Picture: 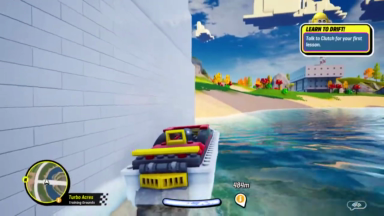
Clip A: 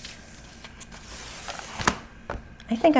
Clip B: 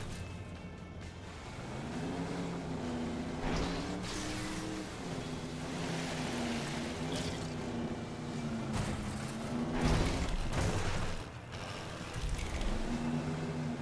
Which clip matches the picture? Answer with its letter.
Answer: B